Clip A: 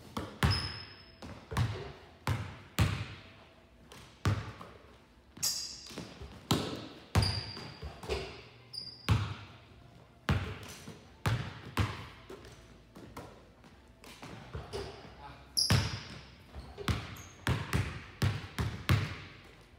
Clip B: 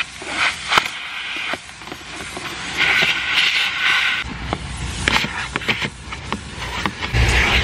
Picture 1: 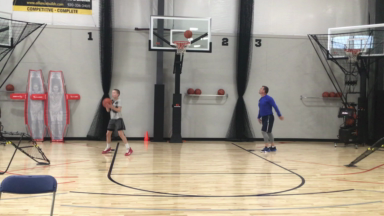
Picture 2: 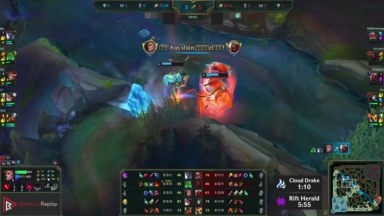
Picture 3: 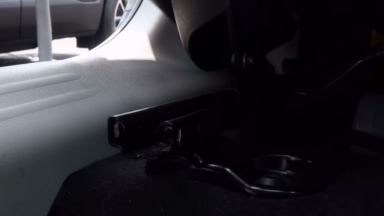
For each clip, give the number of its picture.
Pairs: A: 1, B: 3